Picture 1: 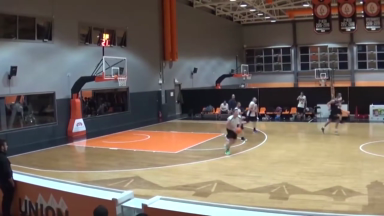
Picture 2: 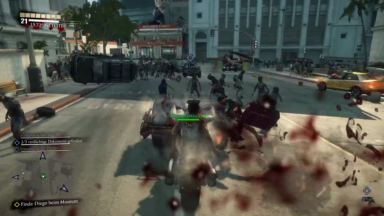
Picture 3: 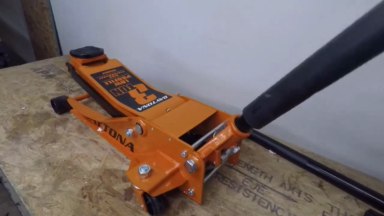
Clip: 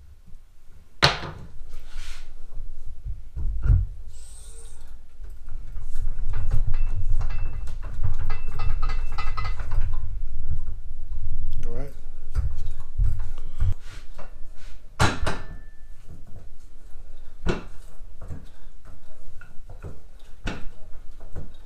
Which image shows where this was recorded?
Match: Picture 3